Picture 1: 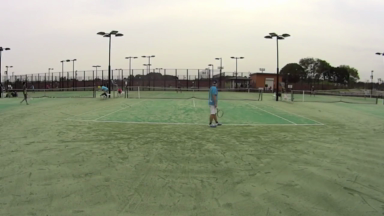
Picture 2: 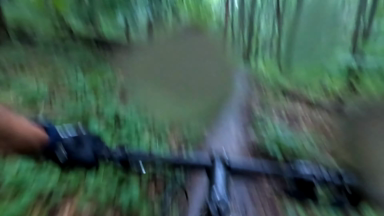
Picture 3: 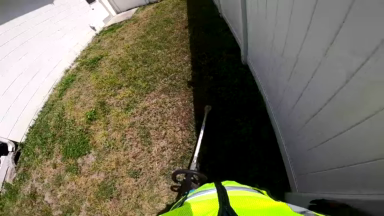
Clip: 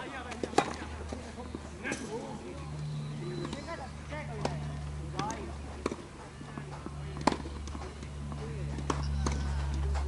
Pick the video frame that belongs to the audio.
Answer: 1